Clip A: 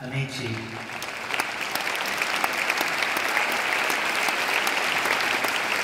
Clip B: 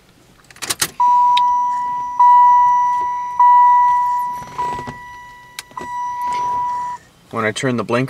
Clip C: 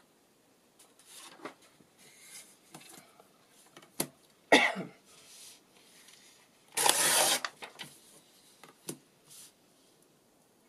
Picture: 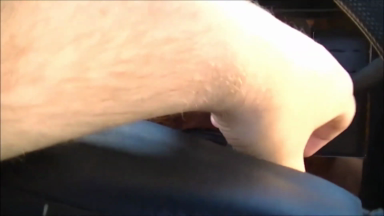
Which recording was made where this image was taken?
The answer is B